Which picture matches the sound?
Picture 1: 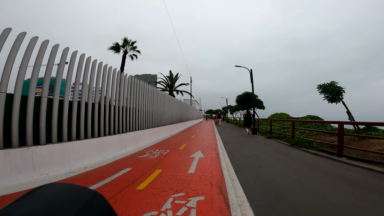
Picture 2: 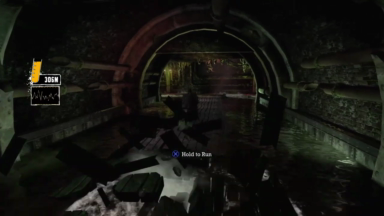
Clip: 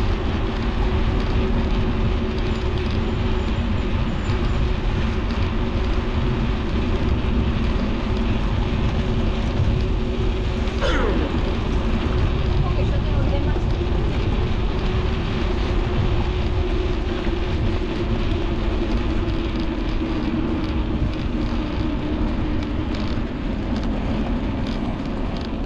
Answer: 1